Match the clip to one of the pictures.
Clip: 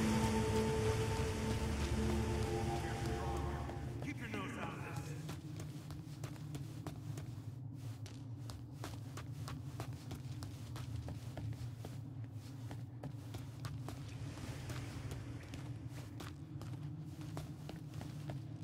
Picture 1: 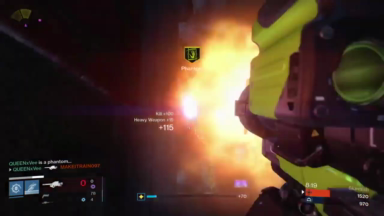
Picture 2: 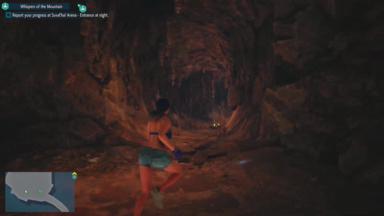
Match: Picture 2